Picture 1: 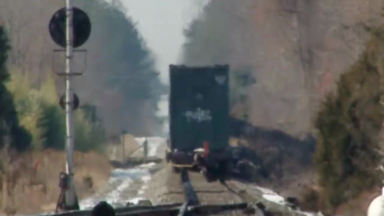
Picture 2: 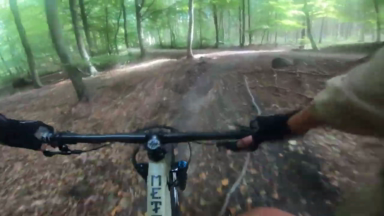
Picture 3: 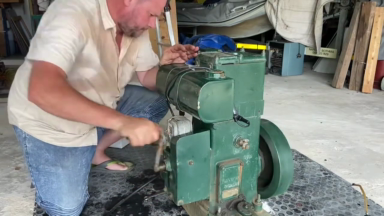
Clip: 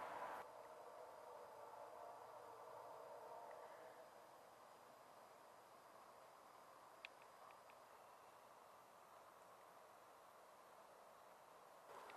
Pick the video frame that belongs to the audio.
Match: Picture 1